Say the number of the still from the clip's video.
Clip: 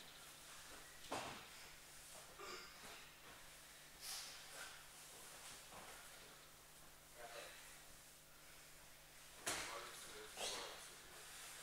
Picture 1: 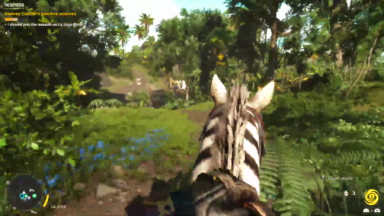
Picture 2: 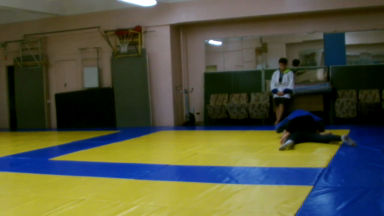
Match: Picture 2